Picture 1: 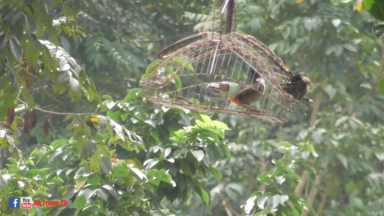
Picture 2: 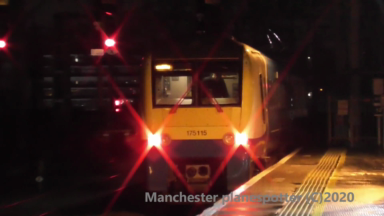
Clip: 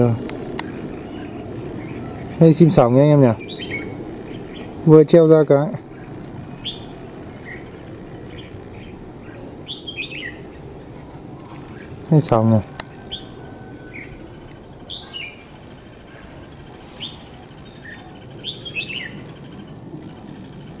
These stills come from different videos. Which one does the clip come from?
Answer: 1